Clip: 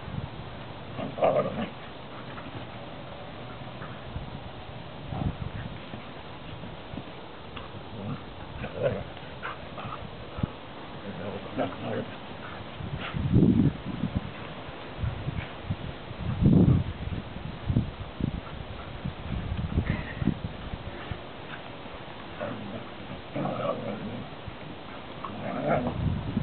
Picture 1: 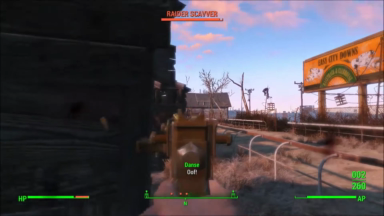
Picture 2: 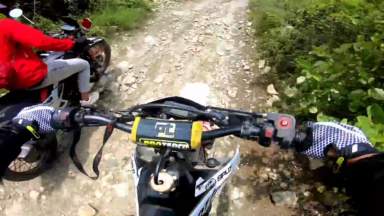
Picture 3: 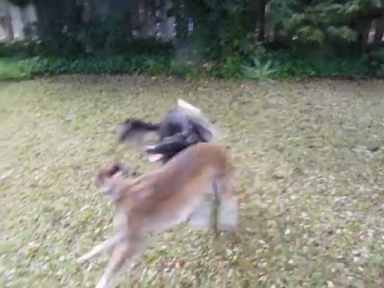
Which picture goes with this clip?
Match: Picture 3